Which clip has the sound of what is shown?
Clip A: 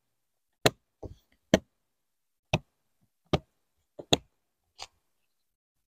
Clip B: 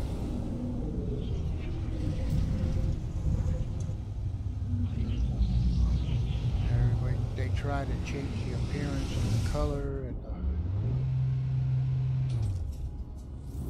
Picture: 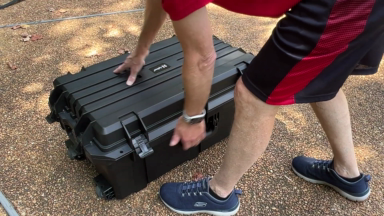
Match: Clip A